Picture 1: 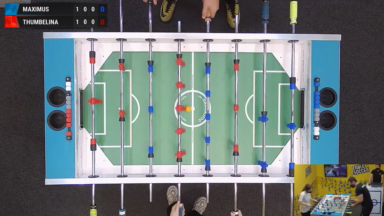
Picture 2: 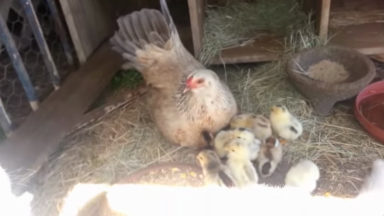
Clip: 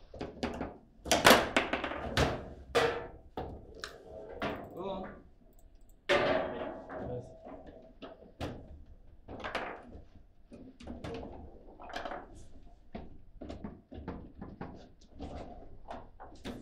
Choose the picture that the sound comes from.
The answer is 1